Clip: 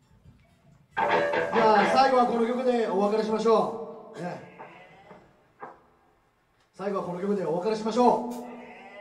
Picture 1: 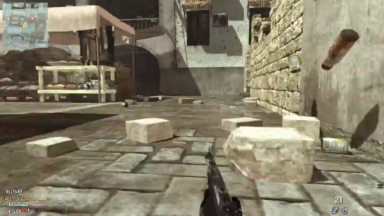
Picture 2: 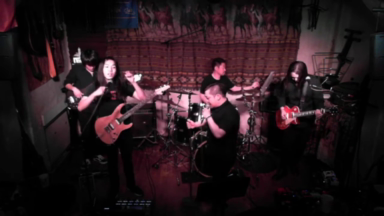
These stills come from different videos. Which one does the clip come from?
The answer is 2